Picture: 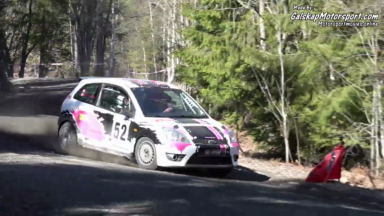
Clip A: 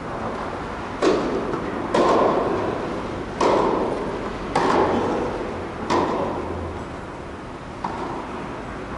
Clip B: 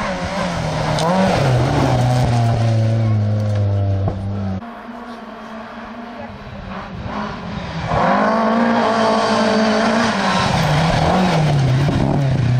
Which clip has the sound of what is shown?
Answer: B